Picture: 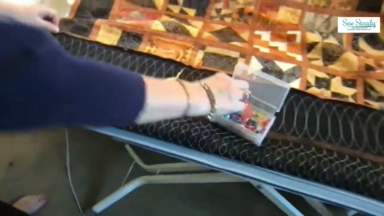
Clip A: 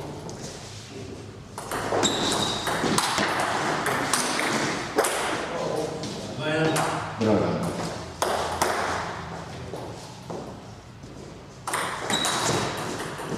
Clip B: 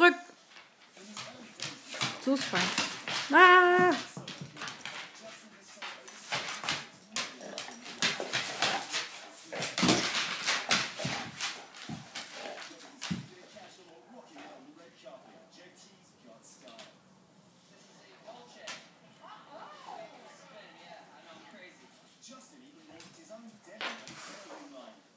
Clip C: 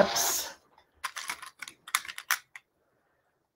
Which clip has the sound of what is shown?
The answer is C